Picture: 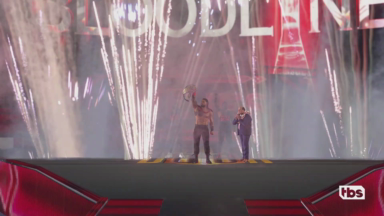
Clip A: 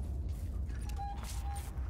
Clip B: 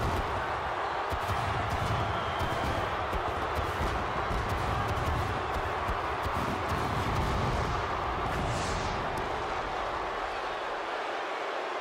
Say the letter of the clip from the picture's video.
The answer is B